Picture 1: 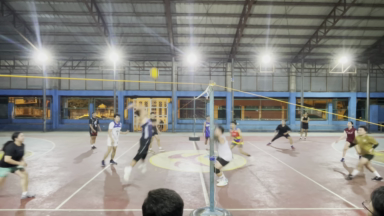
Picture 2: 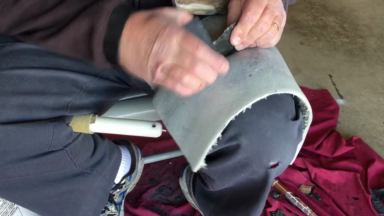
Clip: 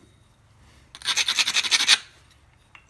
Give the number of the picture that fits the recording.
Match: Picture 2